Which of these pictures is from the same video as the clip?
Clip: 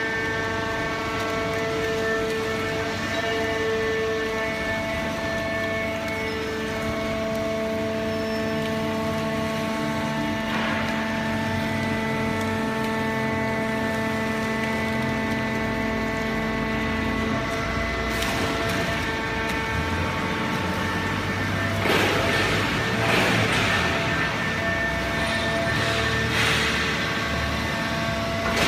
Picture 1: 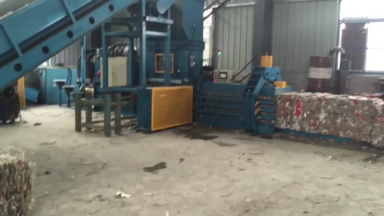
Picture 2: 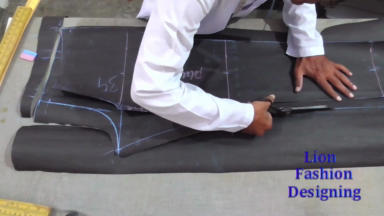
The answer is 1